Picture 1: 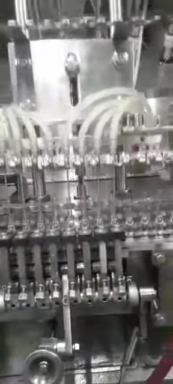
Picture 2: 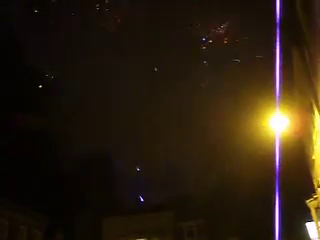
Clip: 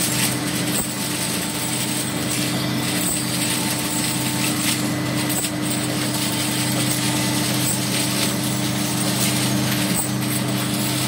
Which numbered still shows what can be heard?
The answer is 1